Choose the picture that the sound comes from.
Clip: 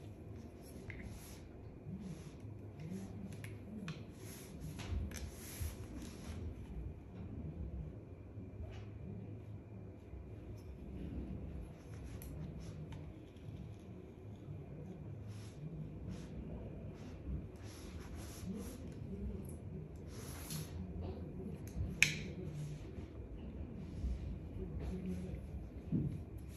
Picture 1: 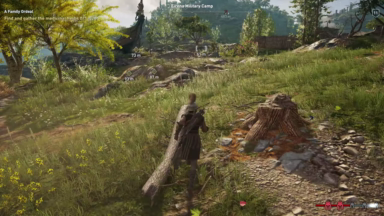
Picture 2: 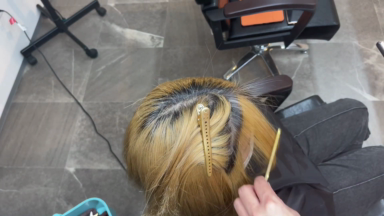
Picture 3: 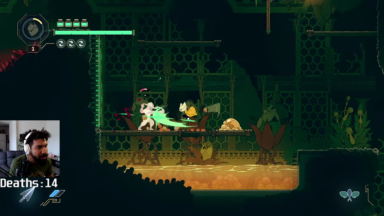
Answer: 2